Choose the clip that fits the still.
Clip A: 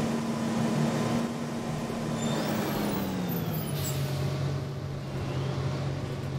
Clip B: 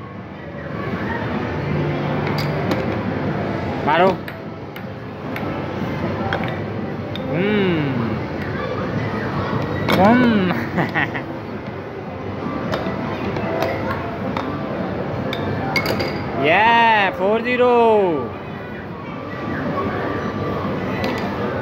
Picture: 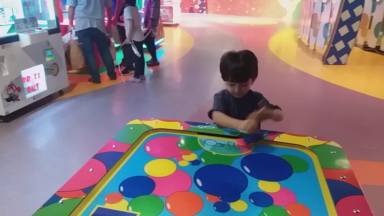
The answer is B